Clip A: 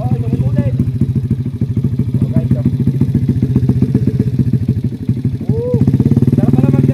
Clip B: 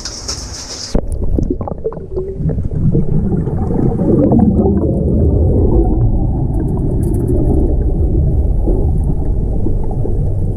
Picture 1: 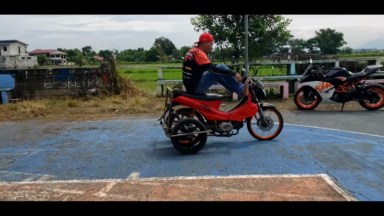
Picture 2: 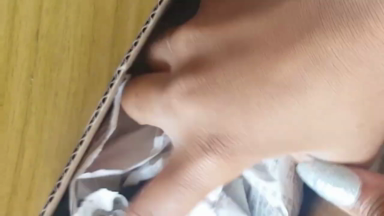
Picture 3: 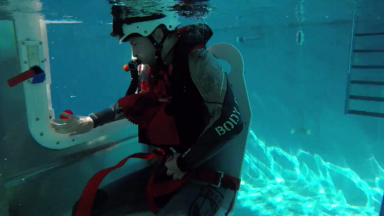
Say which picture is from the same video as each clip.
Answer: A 1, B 3